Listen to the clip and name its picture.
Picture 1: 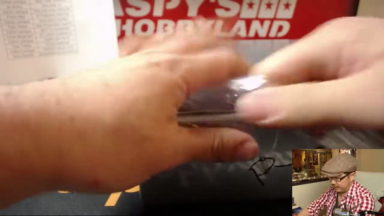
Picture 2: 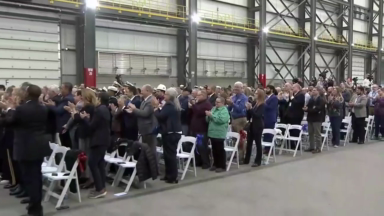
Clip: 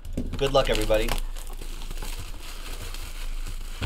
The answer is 1